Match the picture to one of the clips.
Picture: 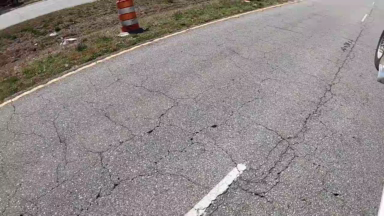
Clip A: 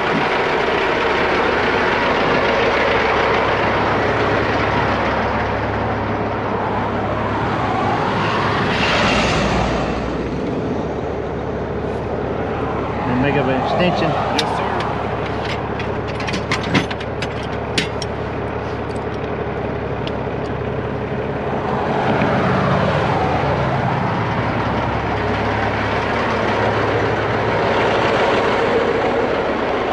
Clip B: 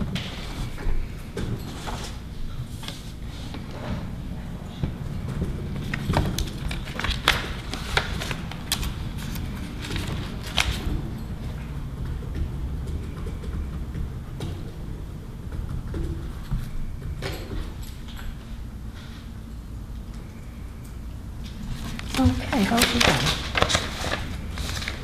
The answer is A